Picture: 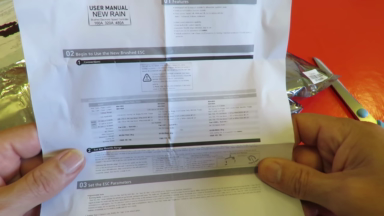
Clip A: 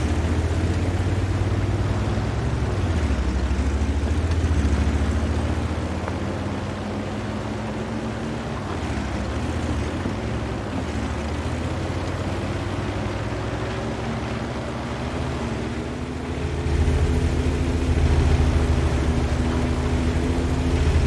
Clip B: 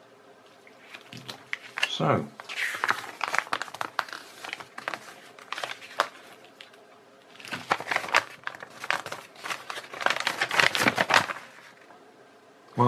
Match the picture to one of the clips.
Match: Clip B